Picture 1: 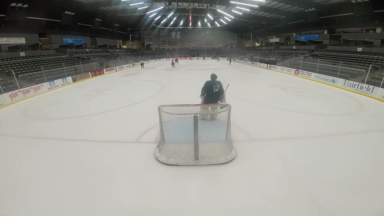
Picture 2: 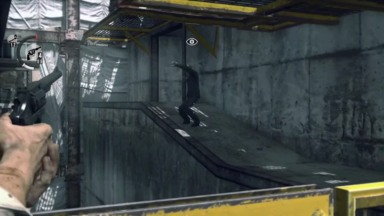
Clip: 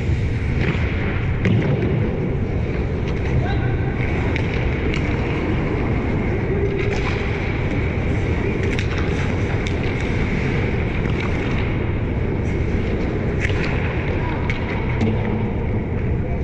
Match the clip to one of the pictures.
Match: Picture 1